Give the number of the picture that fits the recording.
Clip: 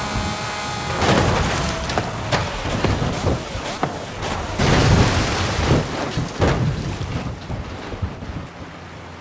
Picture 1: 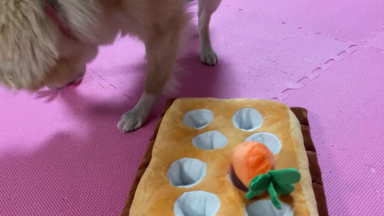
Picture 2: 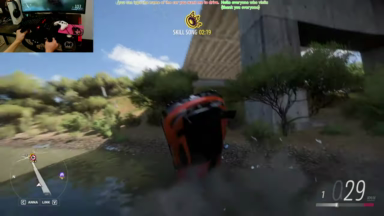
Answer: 2